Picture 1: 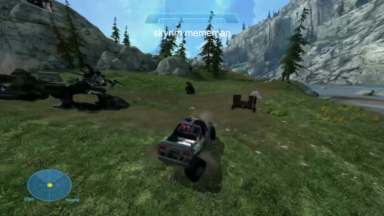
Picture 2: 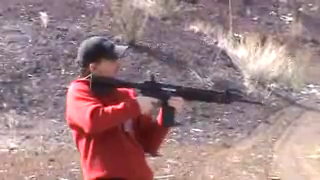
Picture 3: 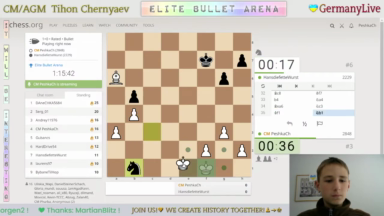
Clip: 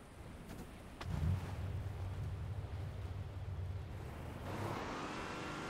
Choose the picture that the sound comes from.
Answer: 1